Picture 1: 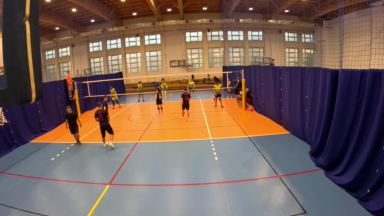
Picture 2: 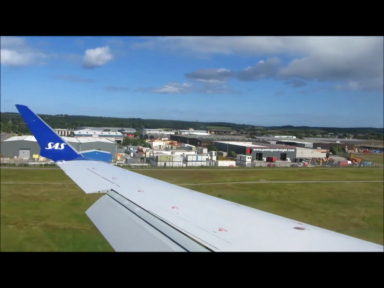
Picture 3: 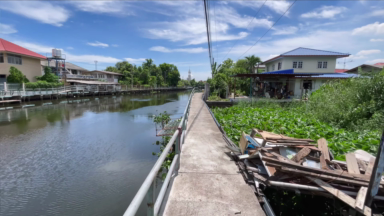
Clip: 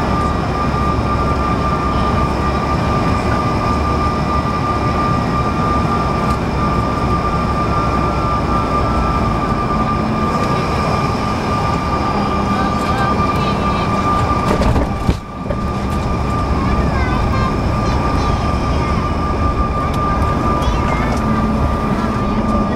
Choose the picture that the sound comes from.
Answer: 2